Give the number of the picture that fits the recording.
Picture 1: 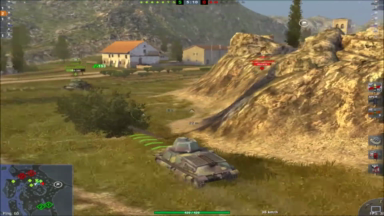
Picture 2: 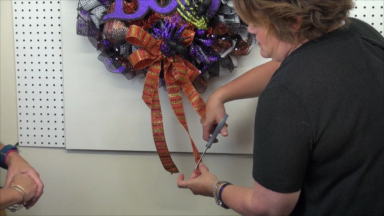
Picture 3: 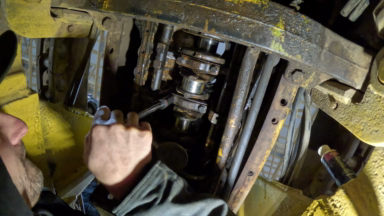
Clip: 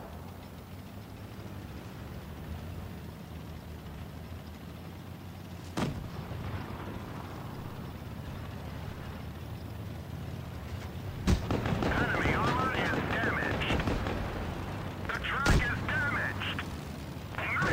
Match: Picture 1